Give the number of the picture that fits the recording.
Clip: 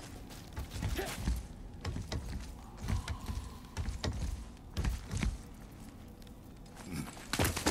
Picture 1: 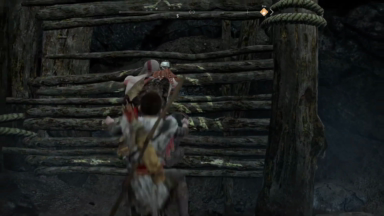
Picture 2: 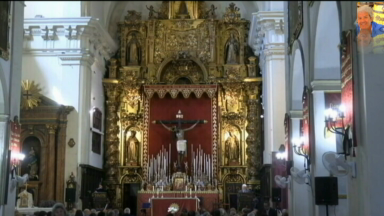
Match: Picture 1